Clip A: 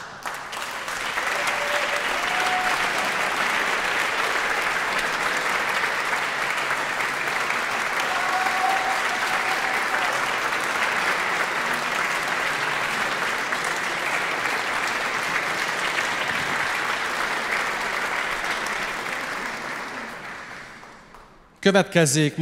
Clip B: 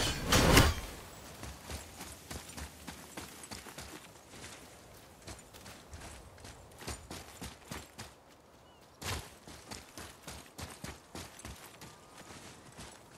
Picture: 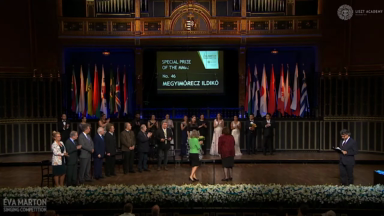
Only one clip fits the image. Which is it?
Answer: A